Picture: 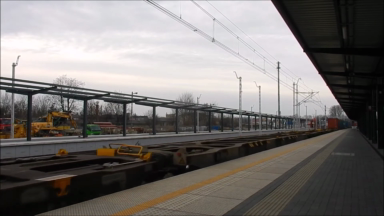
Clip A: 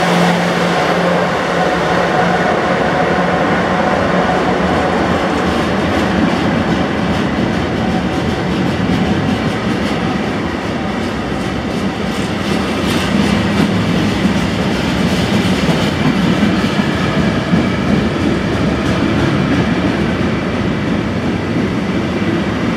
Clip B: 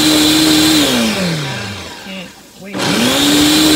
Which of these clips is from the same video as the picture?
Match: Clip A